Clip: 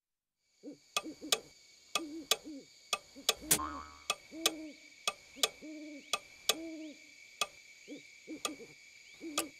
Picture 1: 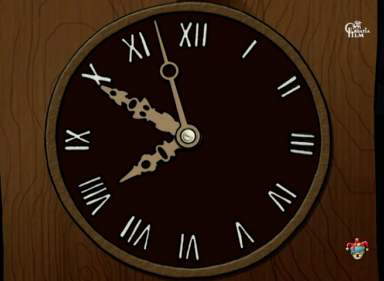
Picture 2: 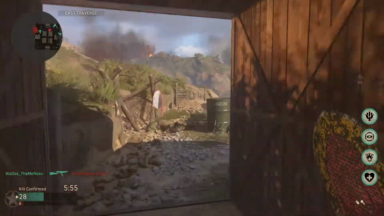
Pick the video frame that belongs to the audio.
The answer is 1